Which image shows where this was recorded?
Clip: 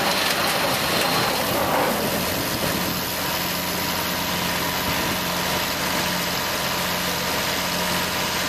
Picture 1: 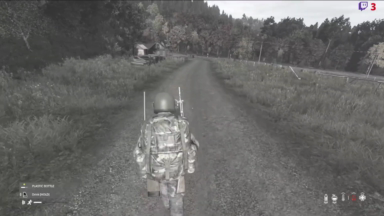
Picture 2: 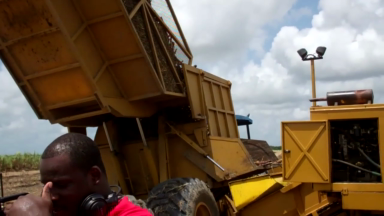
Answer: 2